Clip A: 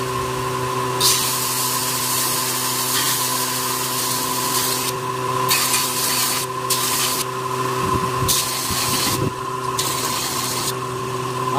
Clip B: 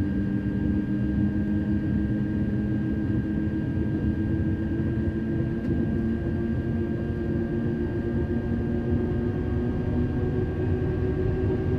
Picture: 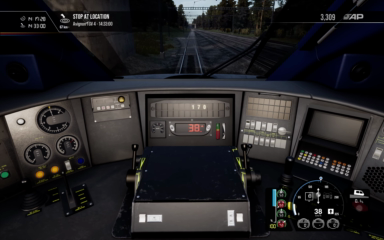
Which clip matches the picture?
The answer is B